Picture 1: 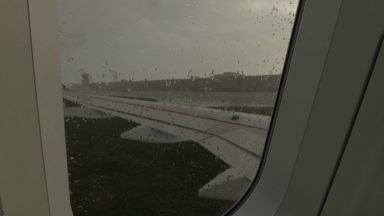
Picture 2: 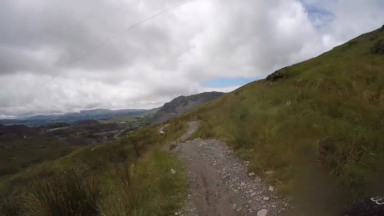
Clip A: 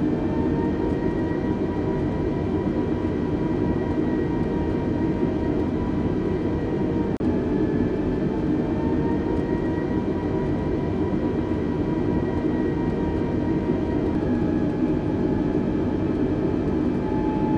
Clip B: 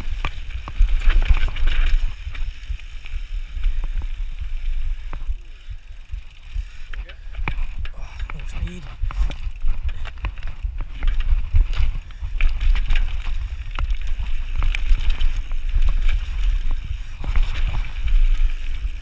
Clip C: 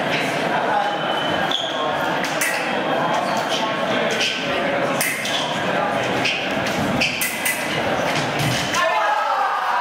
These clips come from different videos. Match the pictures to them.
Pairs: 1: A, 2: B